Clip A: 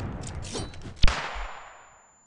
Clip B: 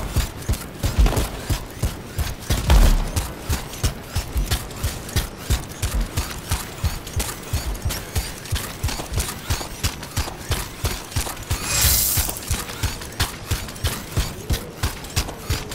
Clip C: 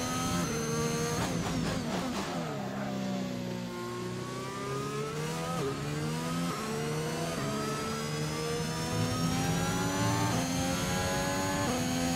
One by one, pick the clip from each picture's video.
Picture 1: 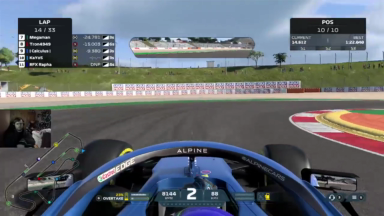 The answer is C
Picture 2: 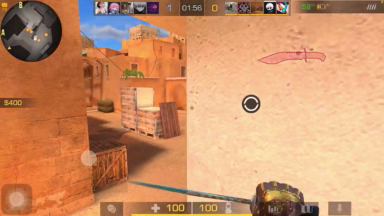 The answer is A